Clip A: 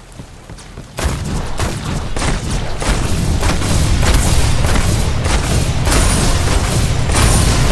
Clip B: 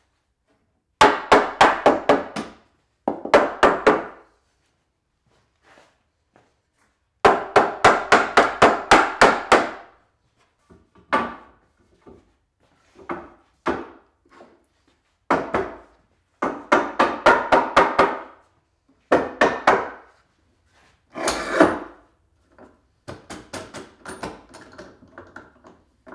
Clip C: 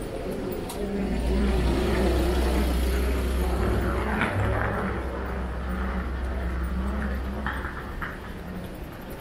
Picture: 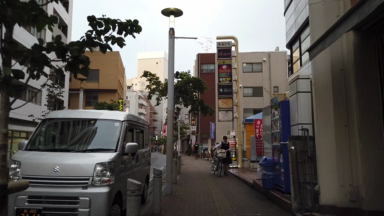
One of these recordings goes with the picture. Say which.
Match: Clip C